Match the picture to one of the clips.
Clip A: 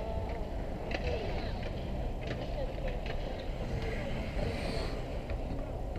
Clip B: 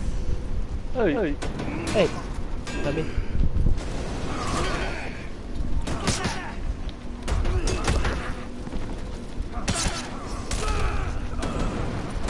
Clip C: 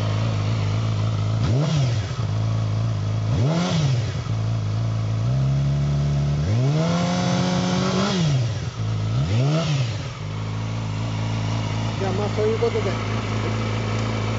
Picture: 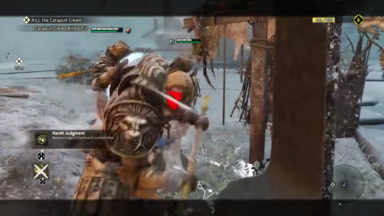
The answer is B